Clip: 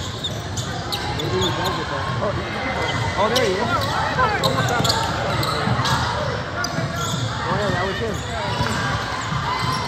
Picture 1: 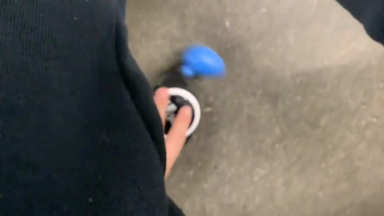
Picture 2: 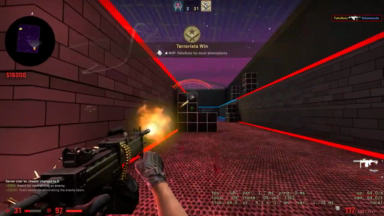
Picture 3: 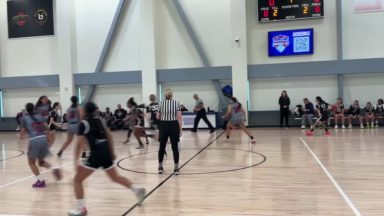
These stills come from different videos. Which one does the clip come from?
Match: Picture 3